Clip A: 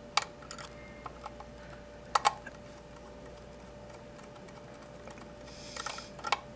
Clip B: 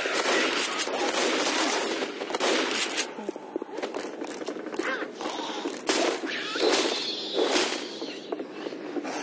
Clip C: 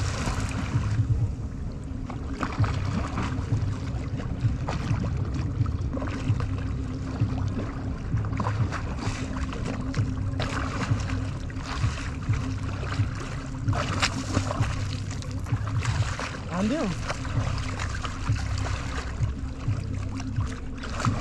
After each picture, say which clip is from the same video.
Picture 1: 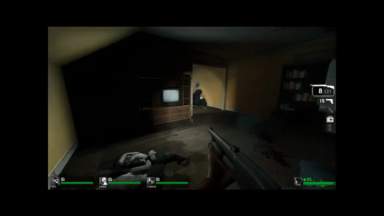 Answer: B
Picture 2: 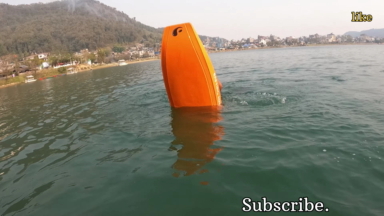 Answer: C